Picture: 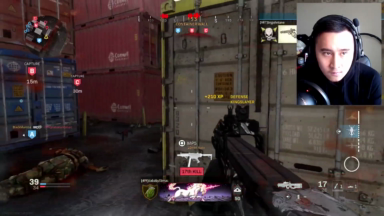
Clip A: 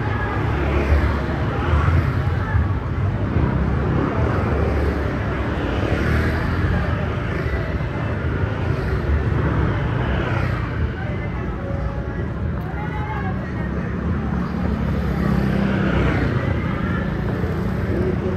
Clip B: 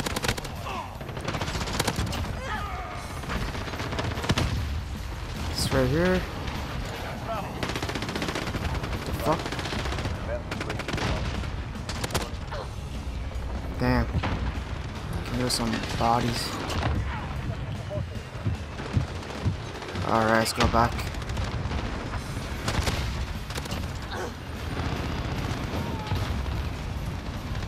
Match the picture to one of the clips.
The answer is B